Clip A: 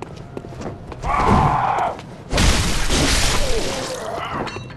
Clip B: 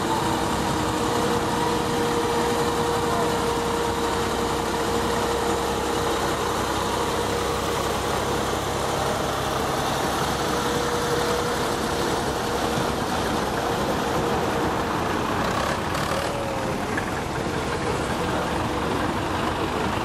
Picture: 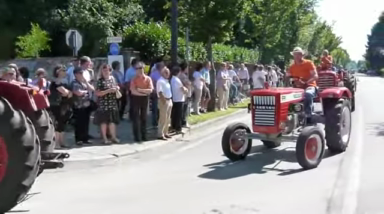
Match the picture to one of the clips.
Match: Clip B